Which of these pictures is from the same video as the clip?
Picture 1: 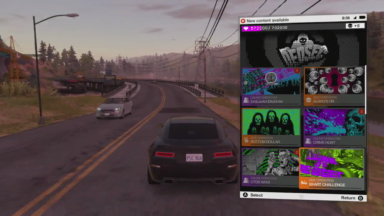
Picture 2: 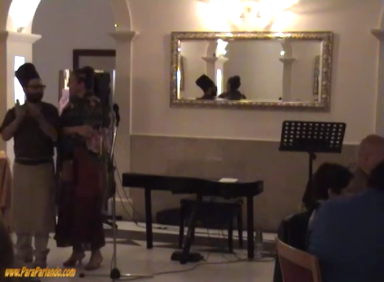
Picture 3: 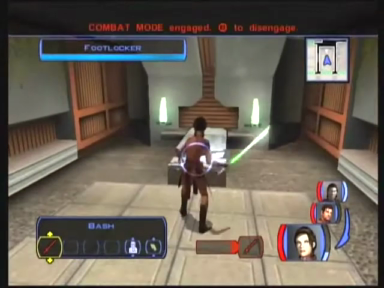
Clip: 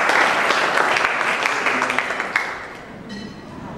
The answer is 2